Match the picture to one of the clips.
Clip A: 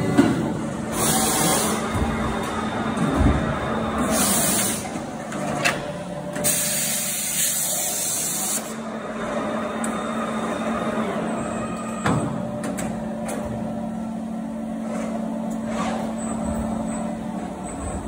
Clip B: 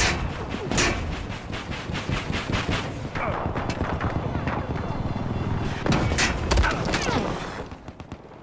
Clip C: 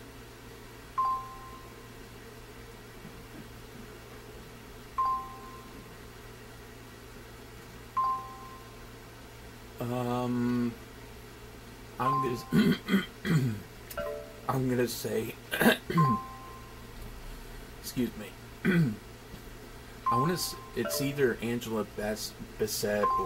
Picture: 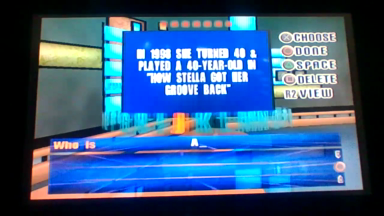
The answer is C